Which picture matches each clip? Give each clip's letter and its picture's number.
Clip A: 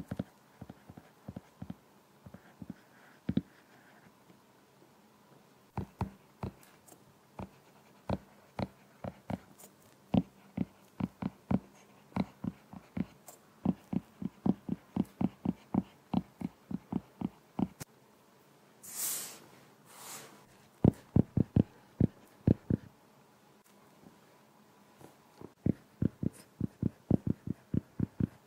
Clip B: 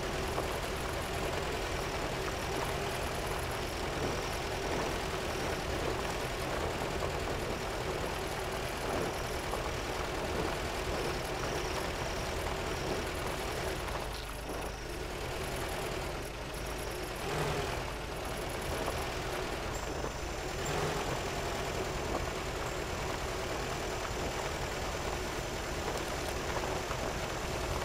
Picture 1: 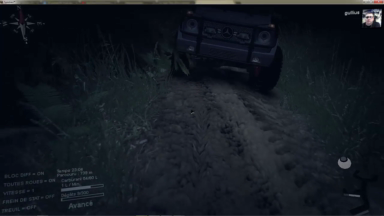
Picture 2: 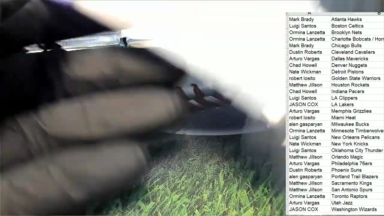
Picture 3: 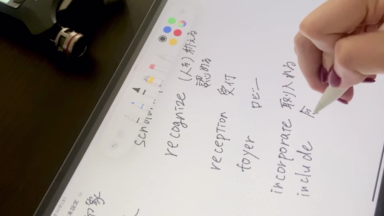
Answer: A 3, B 1